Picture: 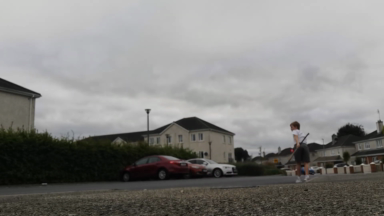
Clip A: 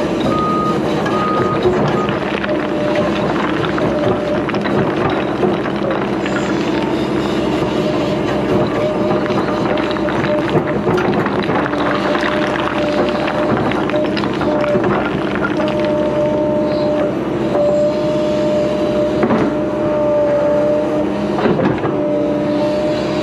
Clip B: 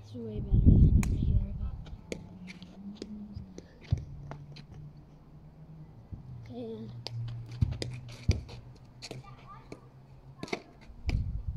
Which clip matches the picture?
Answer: B